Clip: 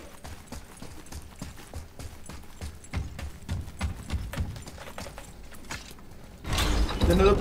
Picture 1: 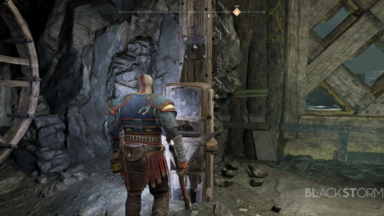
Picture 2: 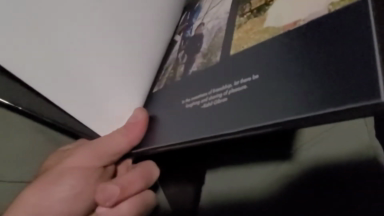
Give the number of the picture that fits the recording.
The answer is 1